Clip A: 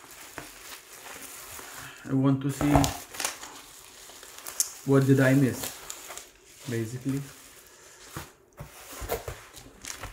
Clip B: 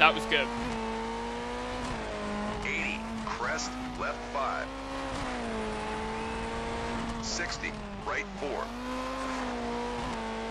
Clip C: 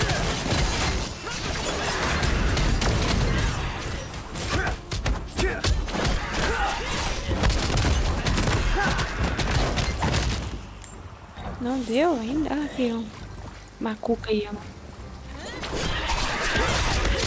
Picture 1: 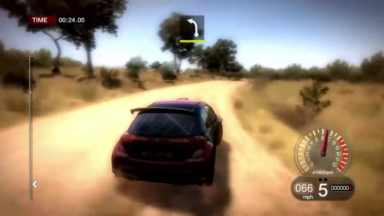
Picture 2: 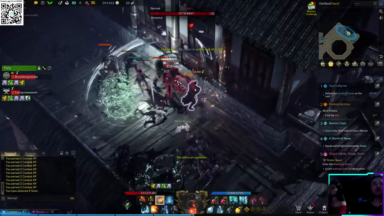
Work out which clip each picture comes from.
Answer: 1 B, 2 C